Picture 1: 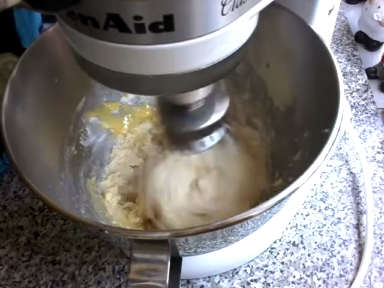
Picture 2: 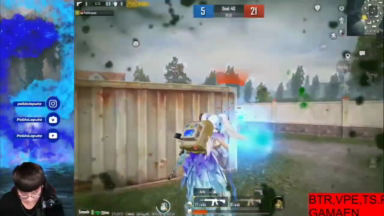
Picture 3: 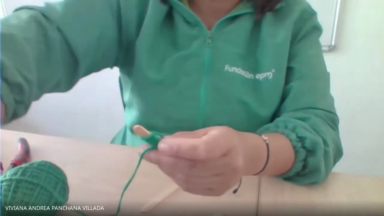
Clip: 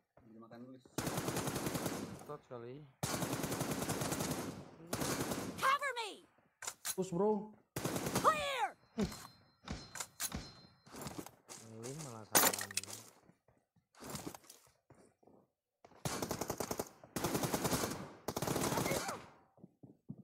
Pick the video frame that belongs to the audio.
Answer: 2